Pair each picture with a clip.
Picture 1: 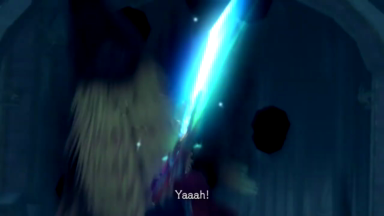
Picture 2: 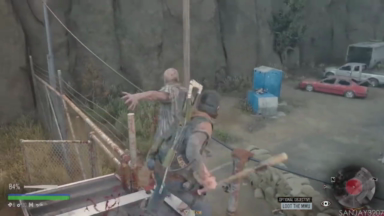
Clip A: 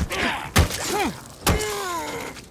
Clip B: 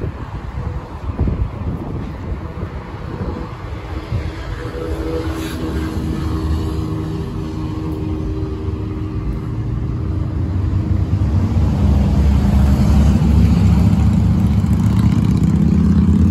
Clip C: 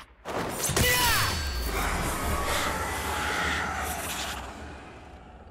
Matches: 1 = C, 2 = A